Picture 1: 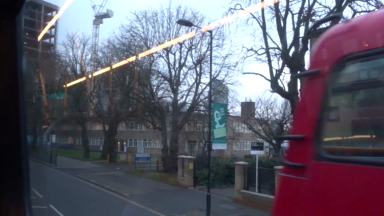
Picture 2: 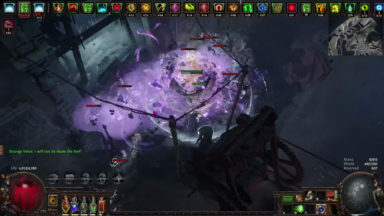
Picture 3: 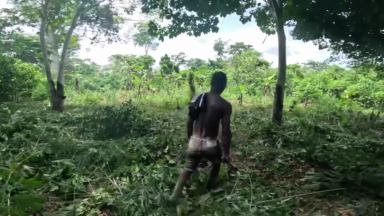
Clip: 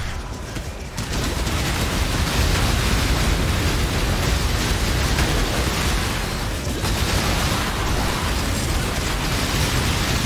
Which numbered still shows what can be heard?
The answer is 2